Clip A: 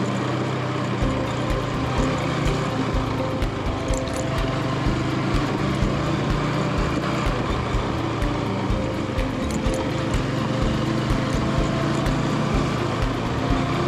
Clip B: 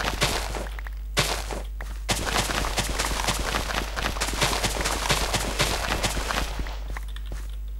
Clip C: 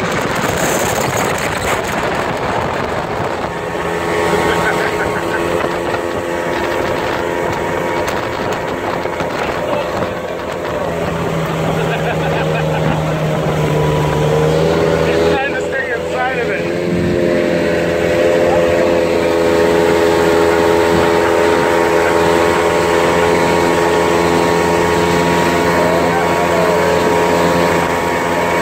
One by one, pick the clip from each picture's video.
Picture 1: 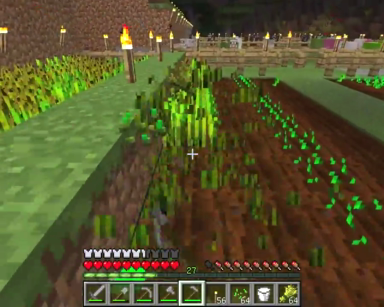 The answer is B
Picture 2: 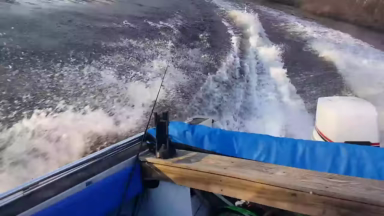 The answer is C